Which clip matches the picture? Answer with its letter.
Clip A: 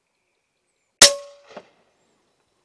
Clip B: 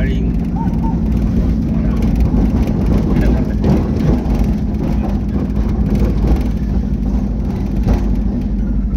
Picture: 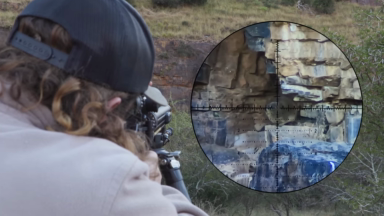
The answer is A